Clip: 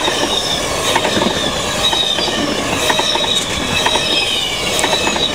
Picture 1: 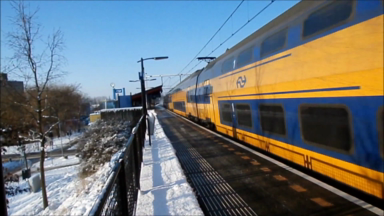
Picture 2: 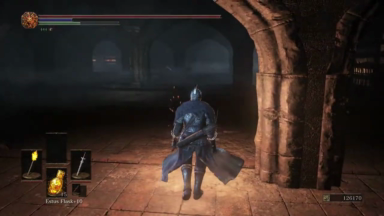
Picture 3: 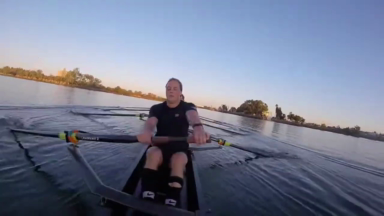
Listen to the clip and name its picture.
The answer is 1